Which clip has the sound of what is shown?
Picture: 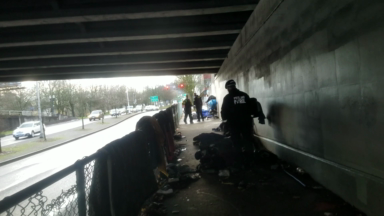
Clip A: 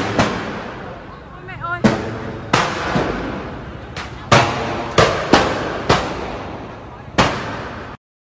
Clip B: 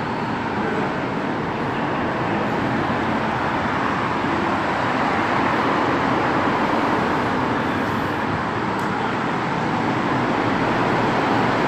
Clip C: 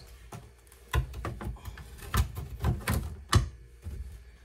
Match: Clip B